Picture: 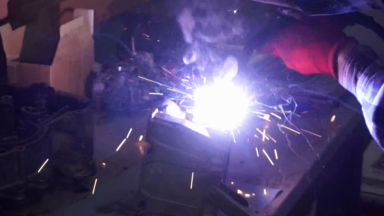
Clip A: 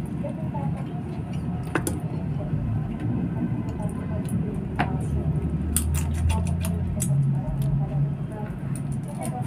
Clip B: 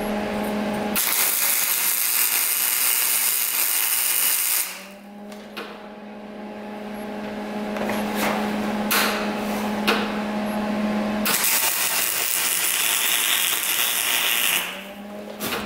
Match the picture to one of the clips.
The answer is B